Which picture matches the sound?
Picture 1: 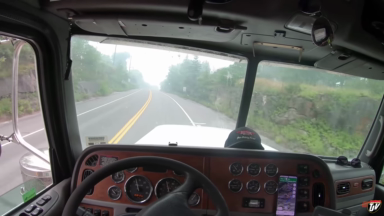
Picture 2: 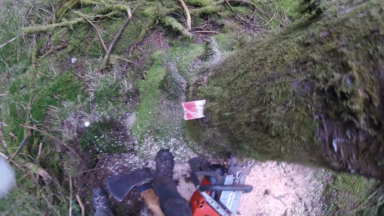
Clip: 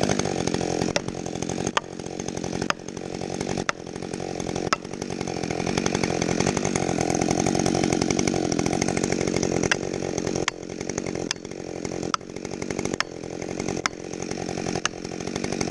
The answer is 2